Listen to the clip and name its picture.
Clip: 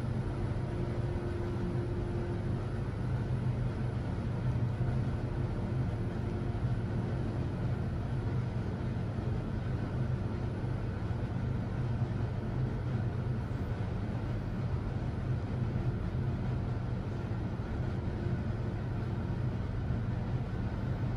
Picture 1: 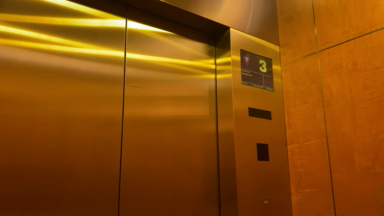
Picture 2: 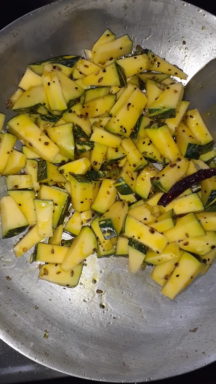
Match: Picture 1